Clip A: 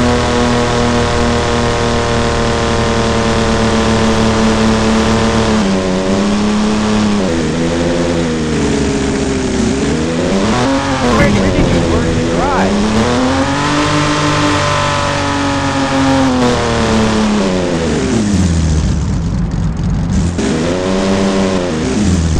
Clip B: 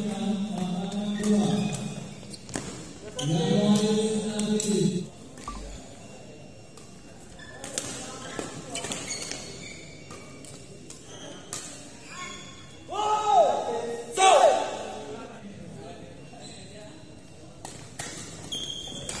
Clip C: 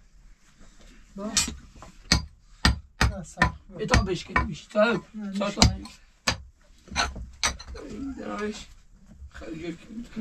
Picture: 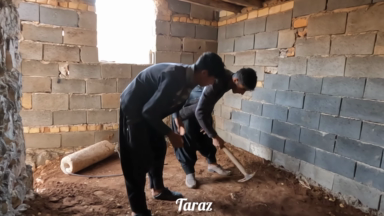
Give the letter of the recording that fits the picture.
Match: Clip C